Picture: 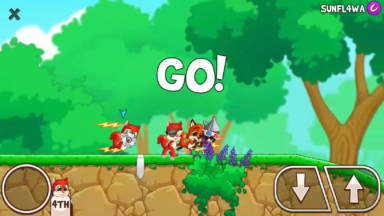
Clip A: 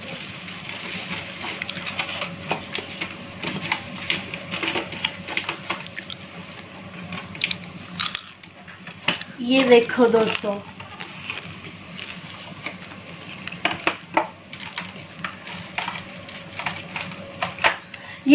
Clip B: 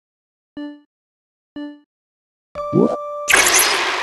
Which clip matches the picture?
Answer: B